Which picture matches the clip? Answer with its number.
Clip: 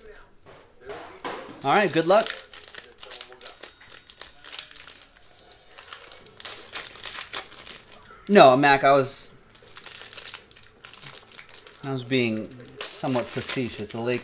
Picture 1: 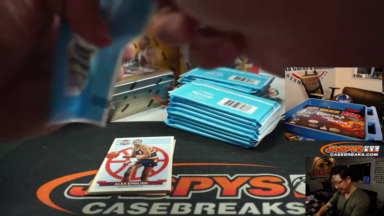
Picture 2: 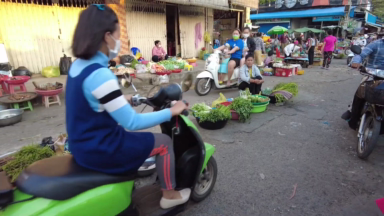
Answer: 1